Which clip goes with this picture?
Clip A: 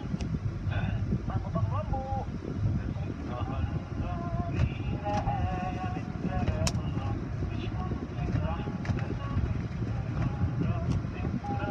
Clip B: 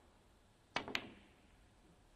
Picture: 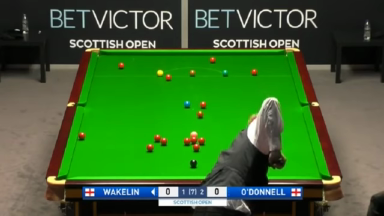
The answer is B